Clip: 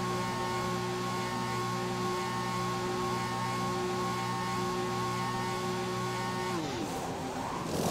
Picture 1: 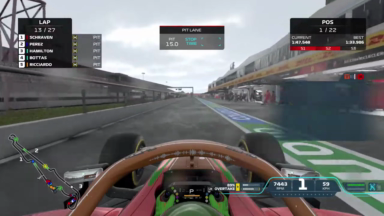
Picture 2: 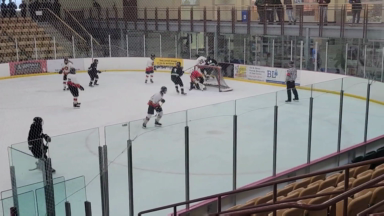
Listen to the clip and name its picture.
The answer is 1